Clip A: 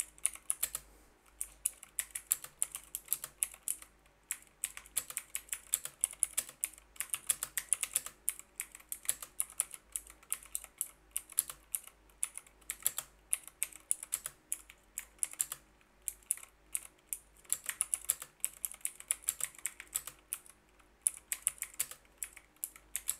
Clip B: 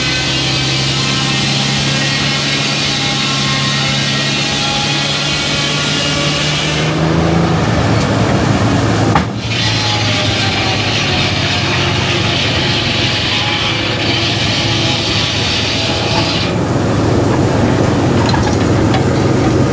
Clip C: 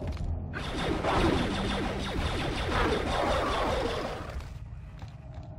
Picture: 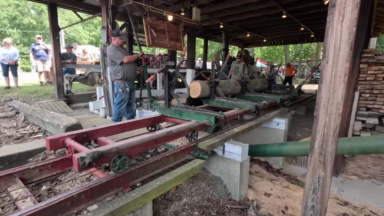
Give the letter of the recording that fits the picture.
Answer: B